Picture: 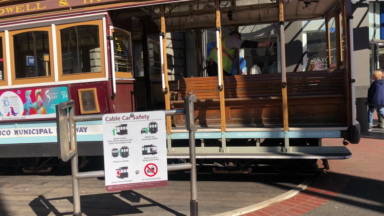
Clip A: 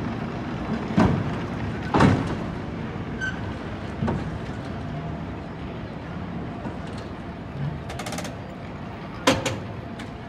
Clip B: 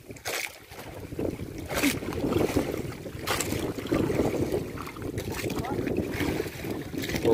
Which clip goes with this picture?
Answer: A